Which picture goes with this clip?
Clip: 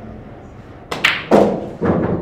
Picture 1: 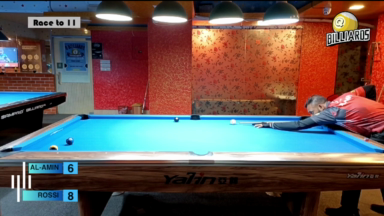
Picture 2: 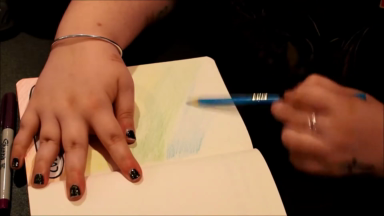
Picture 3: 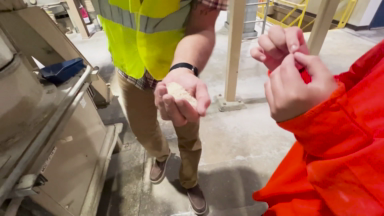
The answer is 1